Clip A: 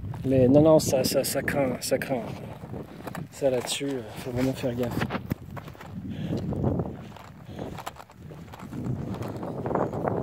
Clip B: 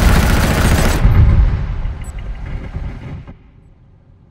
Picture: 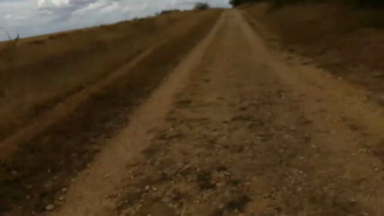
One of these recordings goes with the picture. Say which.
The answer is A